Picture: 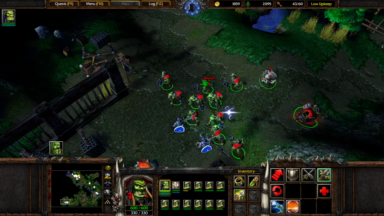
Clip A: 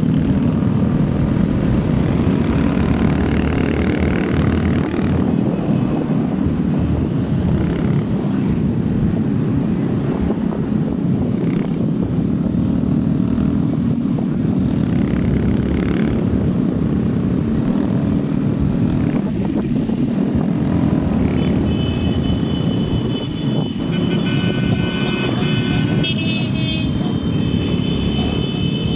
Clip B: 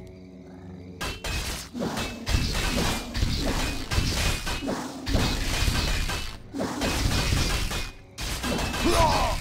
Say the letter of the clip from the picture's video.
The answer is B